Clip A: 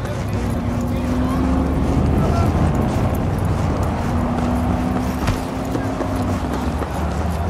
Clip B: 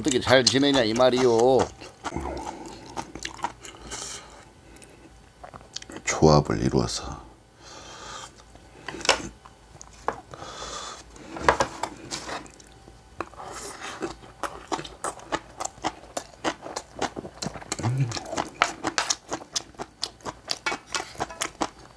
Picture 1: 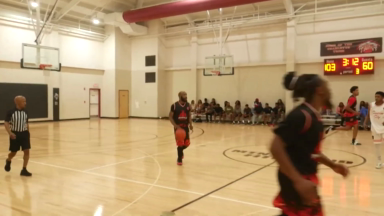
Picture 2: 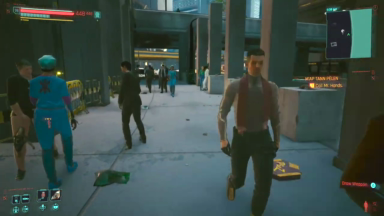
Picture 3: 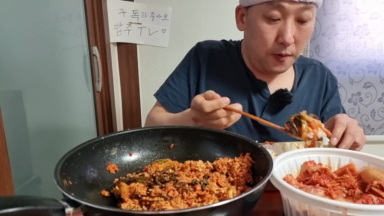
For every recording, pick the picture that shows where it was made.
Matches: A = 2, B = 3